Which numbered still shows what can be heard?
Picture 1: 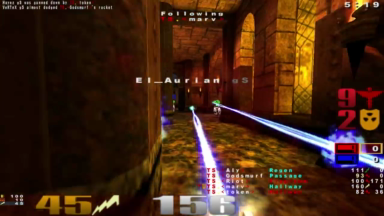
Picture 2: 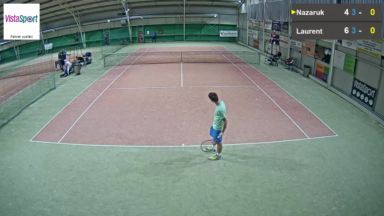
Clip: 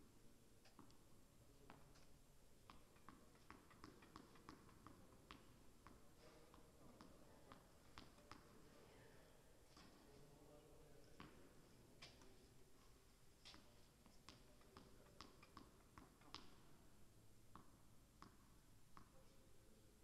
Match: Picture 2